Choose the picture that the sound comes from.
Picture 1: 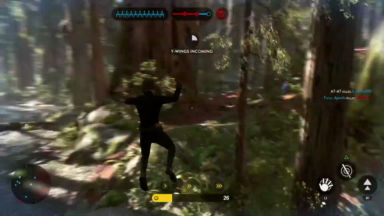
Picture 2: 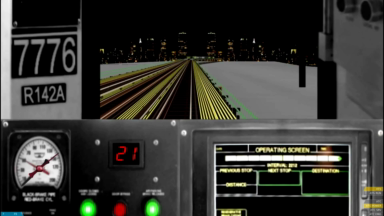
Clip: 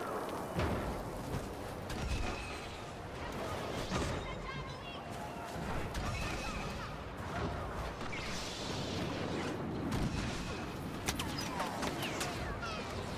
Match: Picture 1